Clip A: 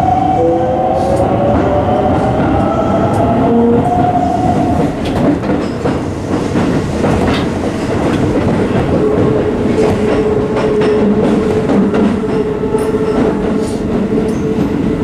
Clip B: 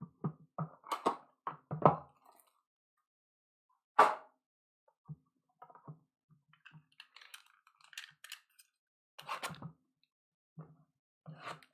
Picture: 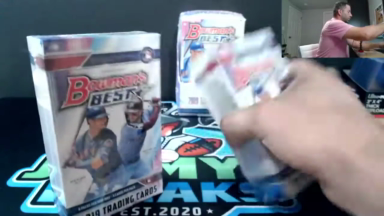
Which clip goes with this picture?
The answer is B